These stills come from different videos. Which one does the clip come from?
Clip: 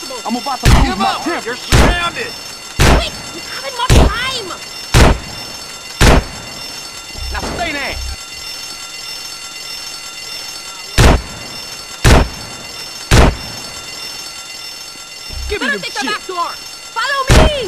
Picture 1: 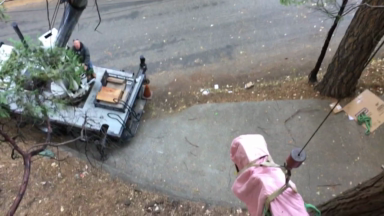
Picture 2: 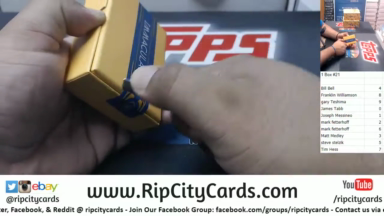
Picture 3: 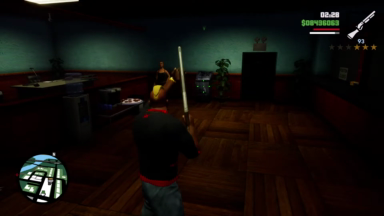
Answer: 3